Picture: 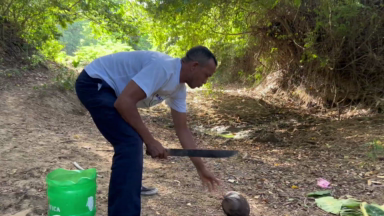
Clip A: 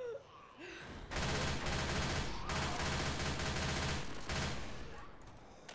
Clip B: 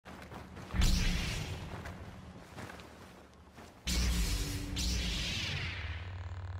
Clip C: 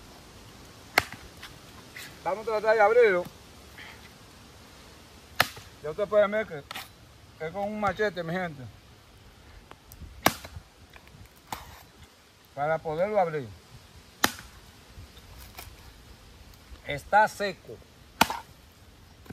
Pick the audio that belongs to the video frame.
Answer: C